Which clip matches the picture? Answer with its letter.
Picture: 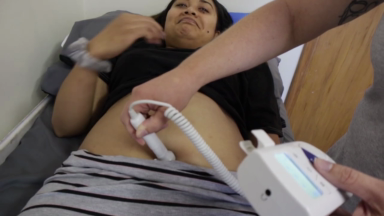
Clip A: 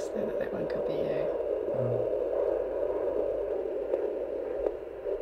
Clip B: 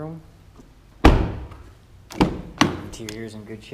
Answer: A